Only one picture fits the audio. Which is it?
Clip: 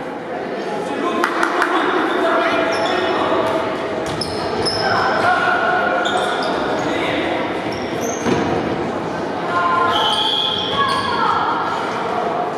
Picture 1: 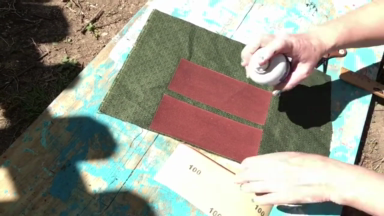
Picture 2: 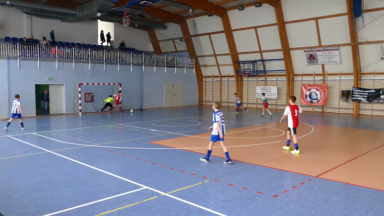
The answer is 2